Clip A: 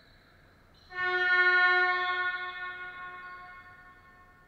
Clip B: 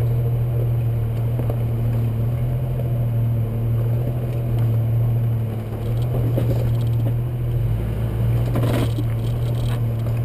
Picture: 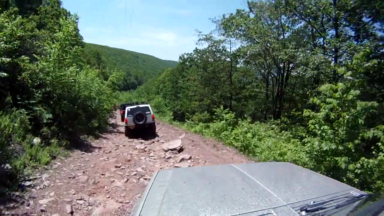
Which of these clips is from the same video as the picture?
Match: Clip B